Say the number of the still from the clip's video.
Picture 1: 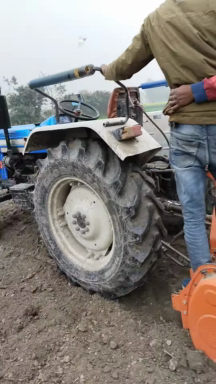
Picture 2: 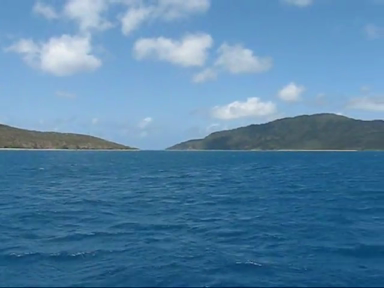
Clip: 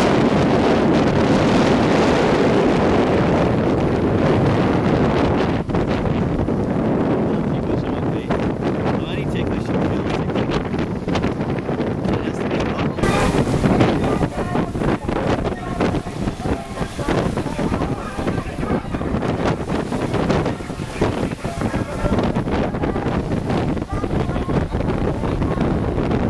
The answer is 2